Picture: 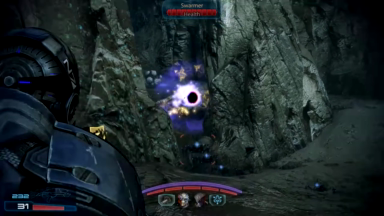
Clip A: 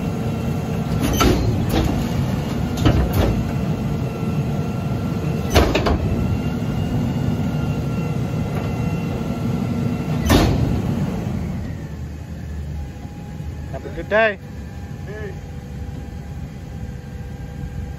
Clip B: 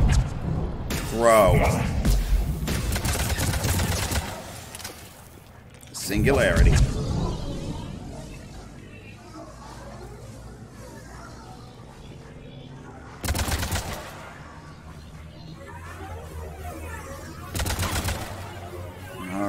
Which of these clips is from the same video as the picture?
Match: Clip B